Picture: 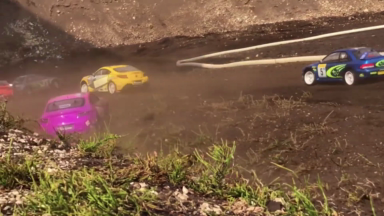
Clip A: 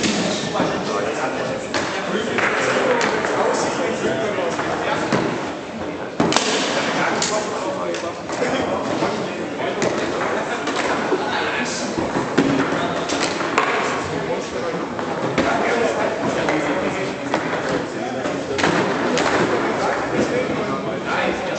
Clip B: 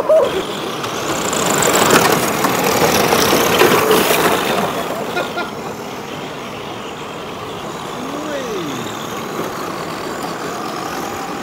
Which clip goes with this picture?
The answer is B